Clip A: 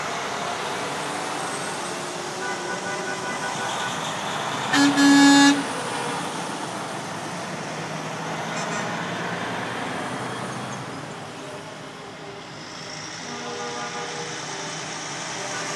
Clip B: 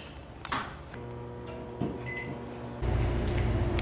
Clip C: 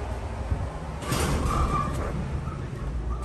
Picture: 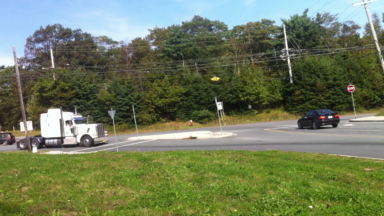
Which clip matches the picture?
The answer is A